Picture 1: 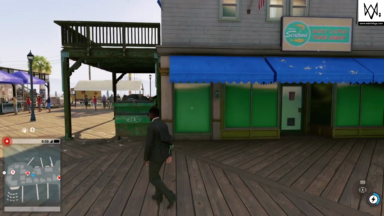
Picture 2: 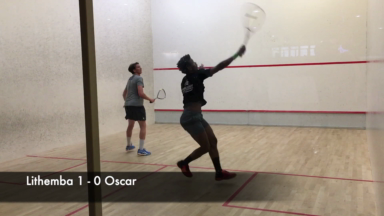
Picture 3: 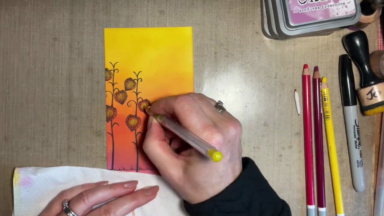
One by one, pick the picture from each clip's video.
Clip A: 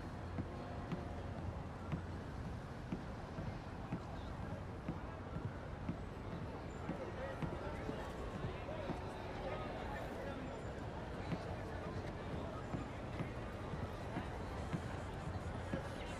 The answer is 1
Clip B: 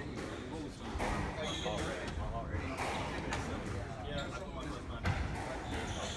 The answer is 2